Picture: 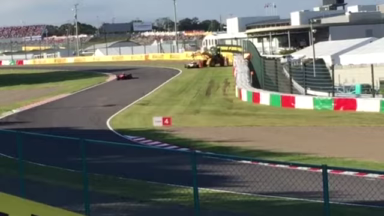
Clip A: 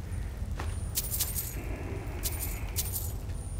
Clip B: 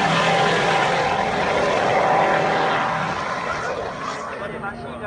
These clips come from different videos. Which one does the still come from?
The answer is B